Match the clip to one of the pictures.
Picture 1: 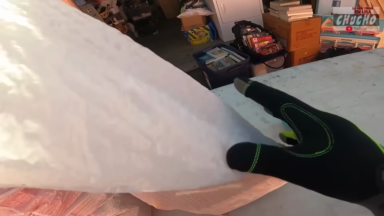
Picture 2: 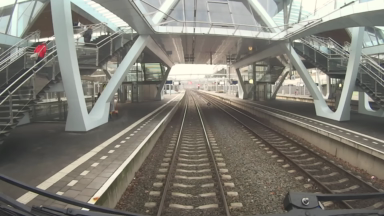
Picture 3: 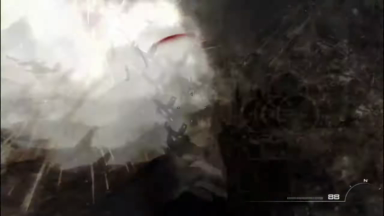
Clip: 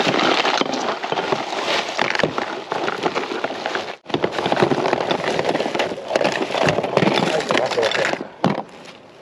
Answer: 1